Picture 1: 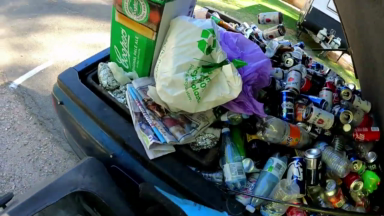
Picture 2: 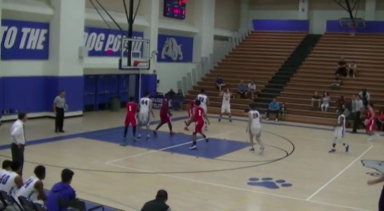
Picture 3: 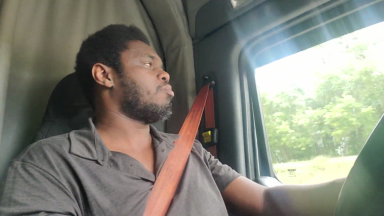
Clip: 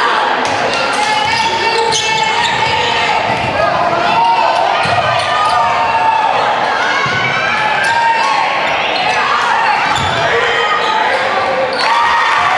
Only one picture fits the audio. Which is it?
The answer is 2